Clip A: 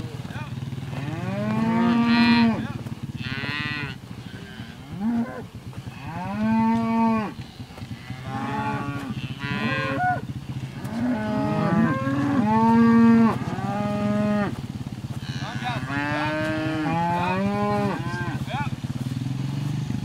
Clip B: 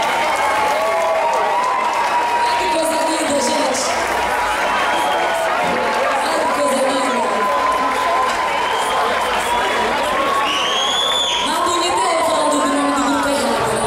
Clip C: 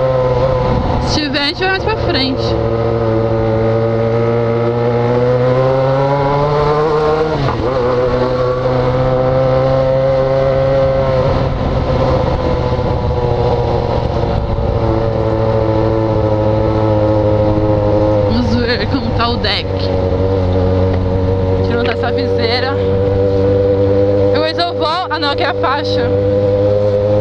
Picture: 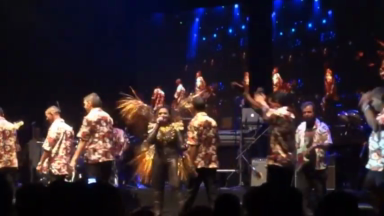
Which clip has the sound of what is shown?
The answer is B